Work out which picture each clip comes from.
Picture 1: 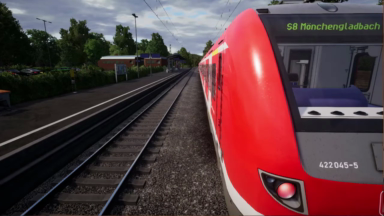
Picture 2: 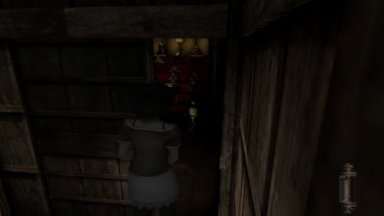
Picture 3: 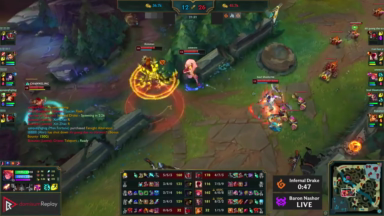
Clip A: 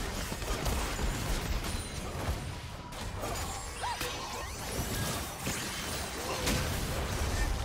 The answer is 3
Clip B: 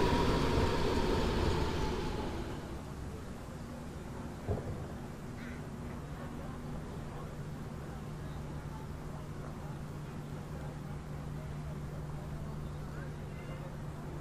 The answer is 1